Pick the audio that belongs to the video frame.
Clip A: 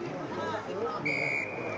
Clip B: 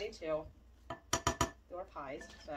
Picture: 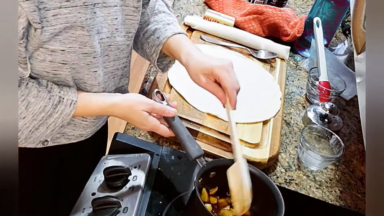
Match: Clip B